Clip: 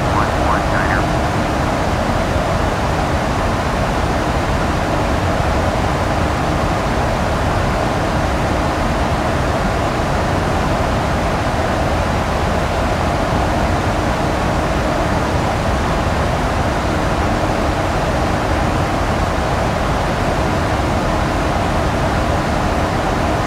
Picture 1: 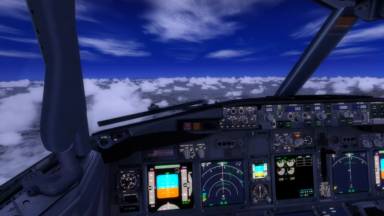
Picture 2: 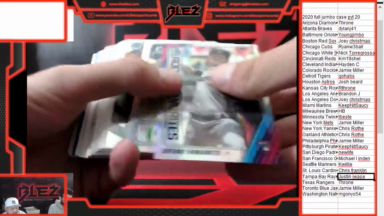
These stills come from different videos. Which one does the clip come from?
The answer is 1